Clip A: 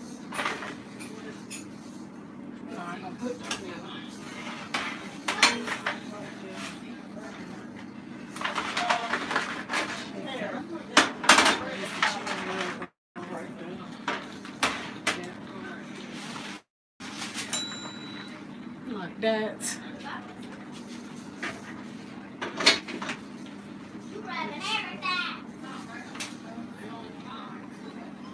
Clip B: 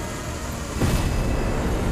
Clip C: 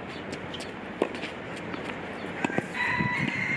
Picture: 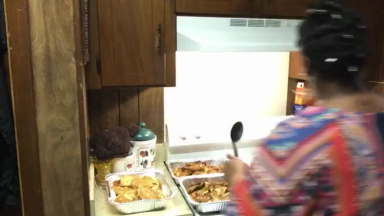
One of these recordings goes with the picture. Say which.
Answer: A